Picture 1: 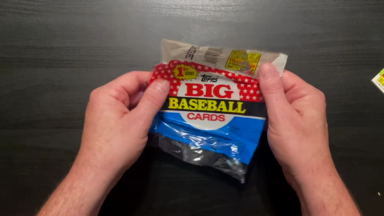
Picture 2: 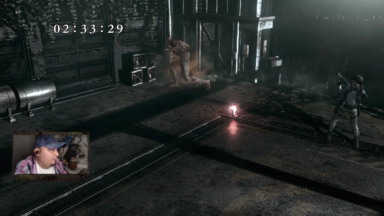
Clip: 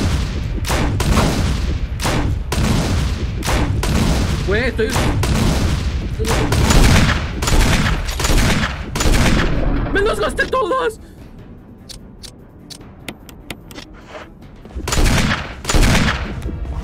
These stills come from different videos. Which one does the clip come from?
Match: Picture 2